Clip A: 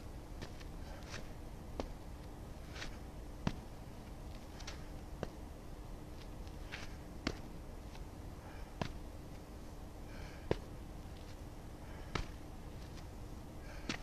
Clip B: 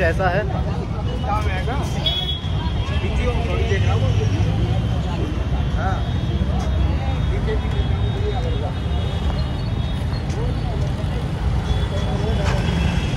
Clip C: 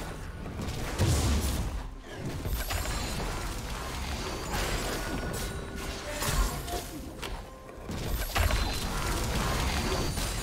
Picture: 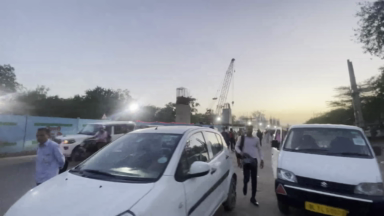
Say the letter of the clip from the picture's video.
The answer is B